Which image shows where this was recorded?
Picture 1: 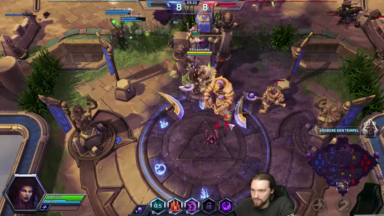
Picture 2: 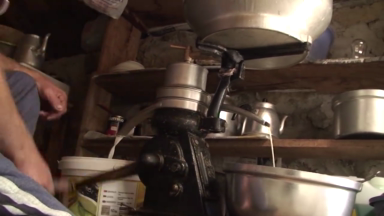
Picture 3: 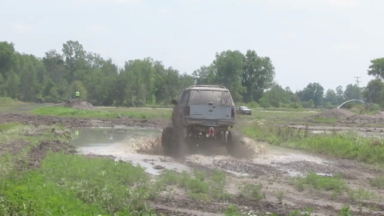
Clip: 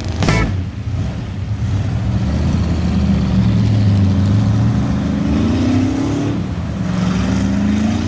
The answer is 3